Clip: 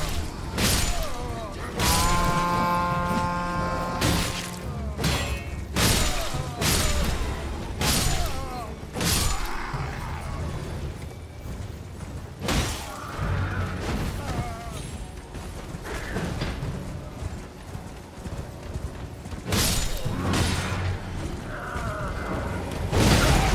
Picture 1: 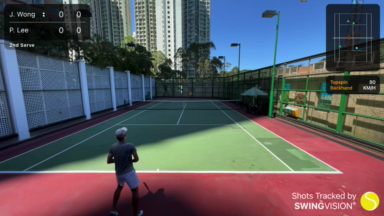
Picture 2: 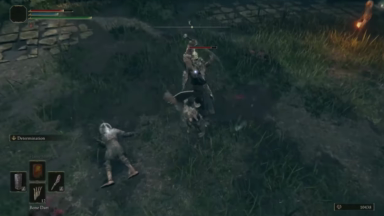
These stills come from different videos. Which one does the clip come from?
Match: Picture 2